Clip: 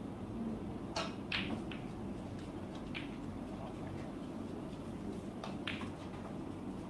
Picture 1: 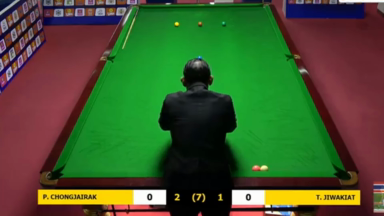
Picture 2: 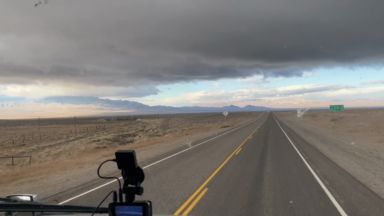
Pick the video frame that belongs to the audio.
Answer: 1